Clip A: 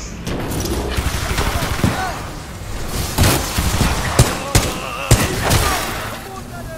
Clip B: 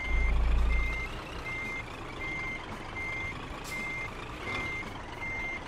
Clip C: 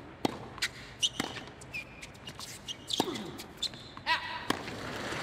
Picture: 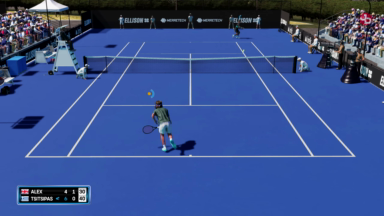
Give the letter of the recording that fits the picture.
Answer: C